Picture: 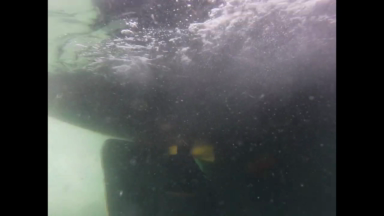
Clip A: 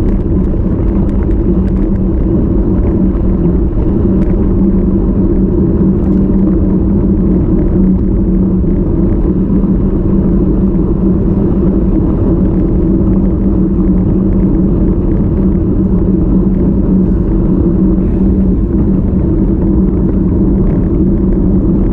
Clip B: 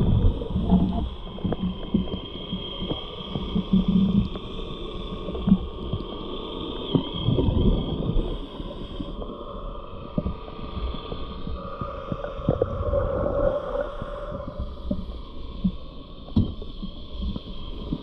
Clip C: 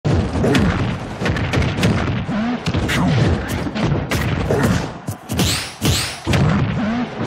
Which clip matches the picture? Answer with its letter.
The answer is B